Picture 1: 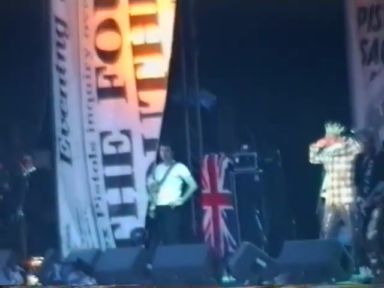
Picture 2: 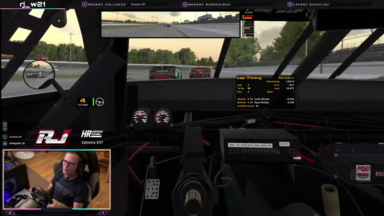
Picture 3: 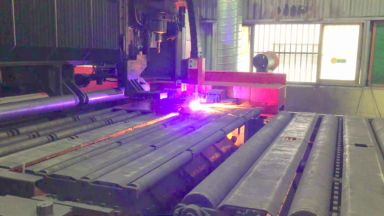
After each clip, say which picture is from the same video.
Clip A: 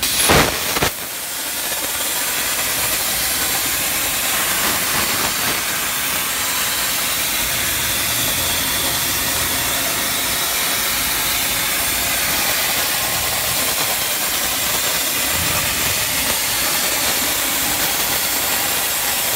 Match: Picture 3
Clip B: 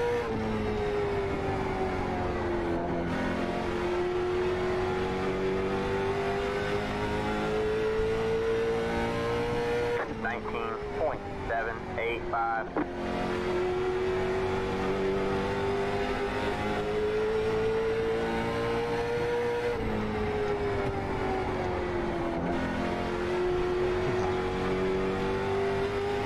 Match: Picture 2